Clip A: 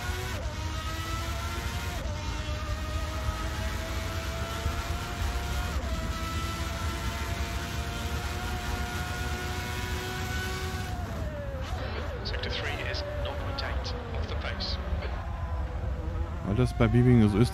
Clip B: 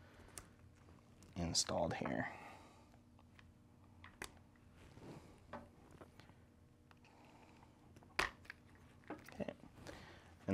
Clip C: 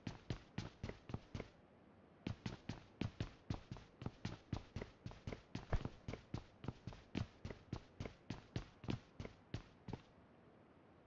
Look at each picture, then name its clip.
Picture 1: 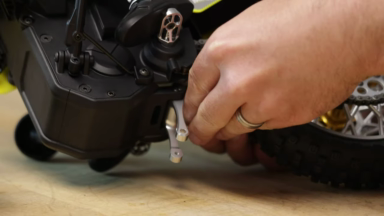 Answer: B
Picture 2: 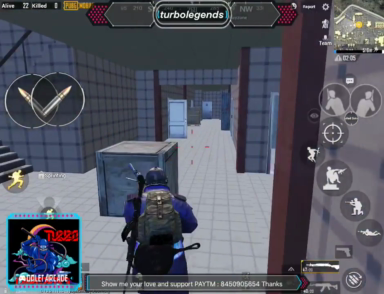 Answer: C